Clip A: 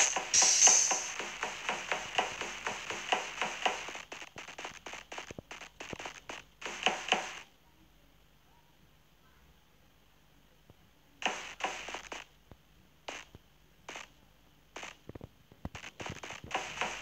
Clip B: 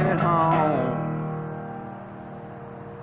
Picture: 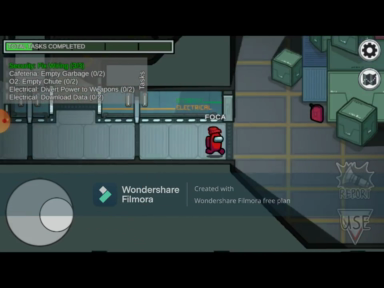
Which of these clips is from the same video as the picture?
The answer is A